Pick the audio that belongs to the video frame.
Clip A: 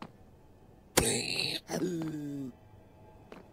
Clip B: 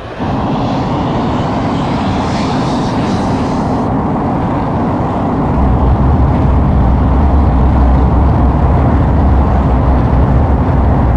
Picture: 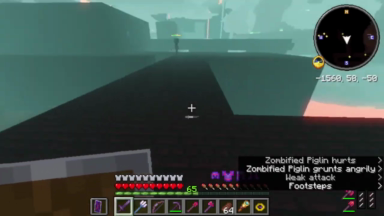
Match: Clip A